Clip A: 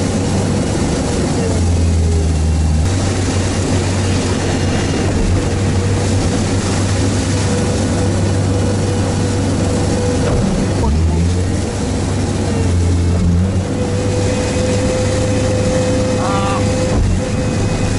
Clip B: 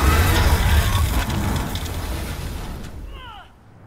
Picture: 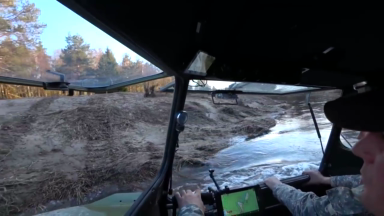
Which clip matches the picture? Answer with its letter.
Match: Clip A